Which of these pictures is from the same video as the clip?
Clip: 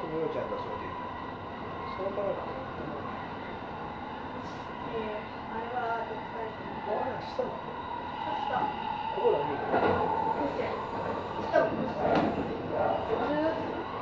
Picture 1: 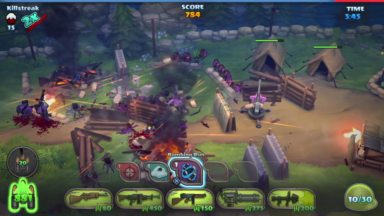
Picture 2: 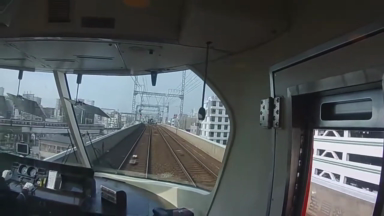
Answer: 2